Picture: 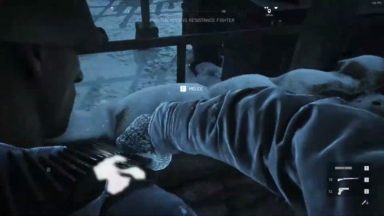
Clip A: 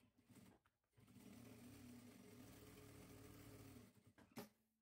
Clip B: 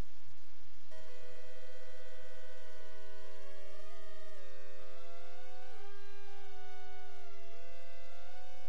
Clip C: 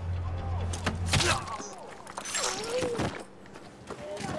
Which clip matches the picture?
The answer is C